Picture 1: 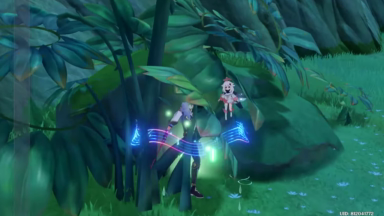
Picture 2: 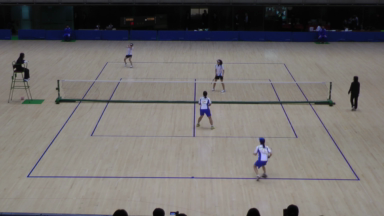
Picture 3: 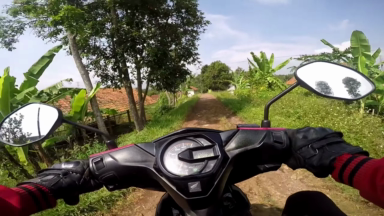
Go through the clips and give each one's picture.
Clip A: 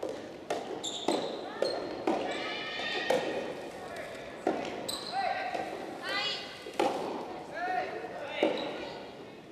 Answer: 2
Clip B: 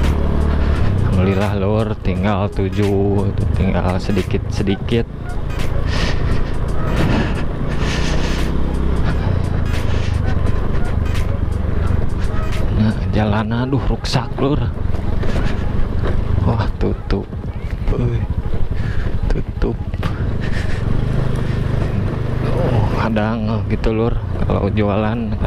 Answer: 3